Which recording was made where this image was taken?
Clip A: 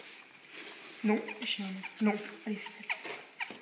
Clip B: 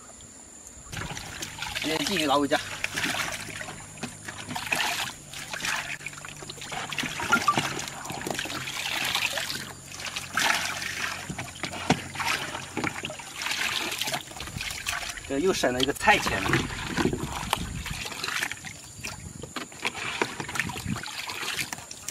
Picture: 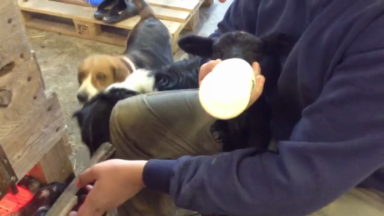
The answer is A